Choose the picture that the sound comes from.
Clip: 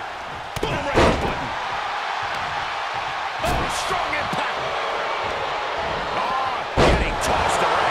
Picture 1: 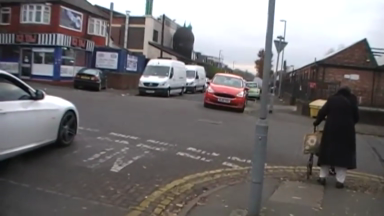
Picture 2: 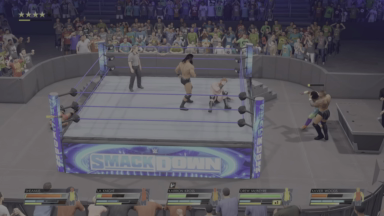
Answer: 2